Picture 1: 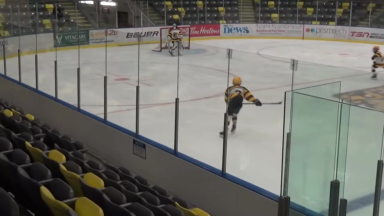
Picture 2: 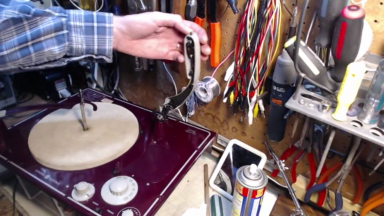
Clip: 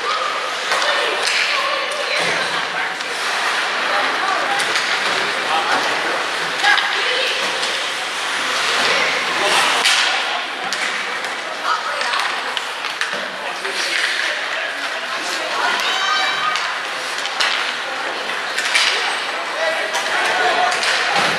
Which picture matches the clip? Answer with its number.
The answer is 1